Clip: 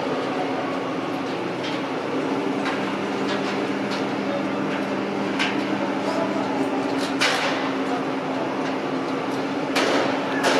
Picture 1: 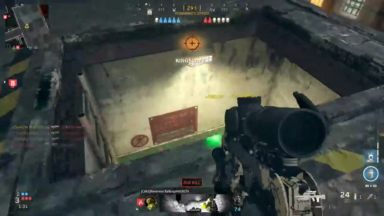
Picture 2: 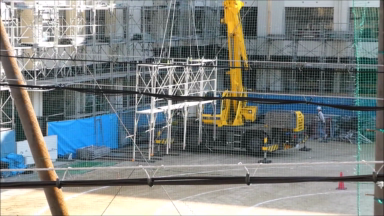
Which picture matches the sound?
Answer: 2